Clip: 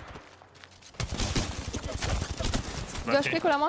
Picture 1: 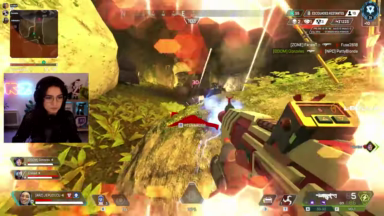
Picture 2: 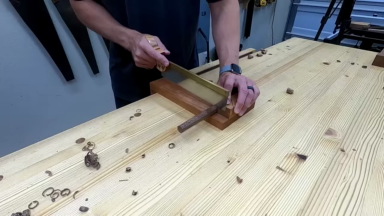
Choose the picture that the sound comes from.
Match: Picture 1